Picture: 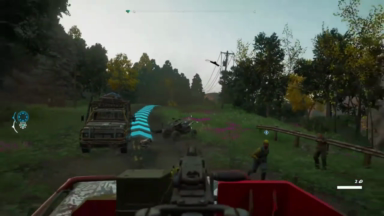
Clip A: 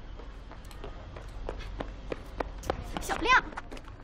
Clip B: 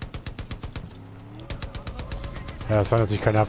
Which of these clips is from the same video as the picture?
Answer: B